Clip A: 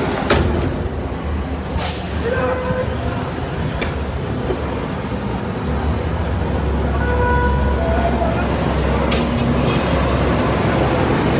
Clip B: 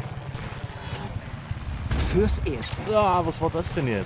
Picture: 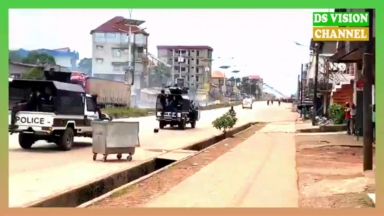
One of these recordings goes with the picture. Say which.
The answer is A